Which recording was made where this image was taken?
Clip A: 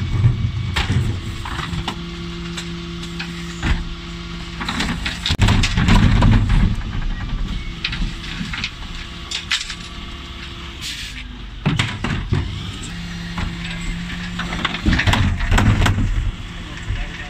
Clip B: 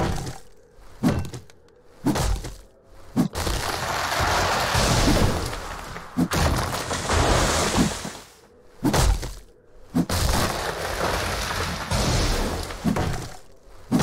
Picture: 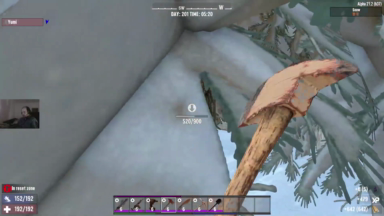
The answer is B